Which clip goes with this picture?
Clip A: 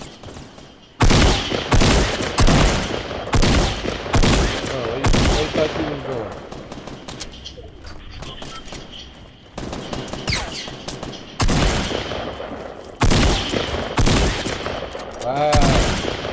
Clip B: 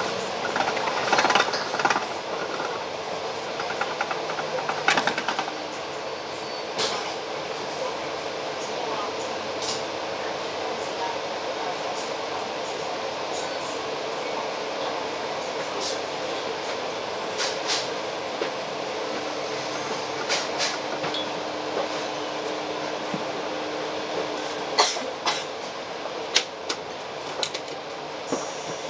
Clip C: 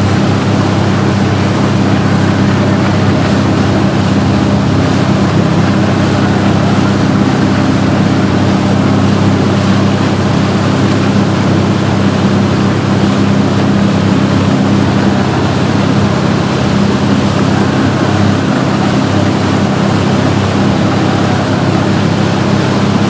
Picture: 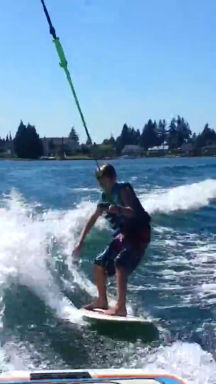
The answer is C